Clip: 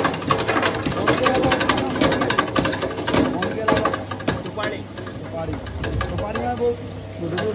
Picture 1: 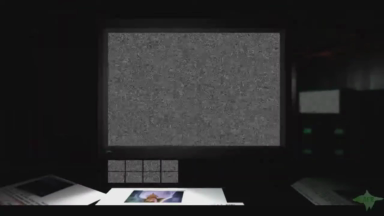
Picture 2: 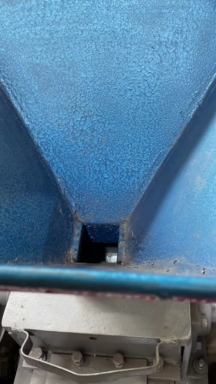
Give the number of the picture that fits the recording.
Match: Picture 2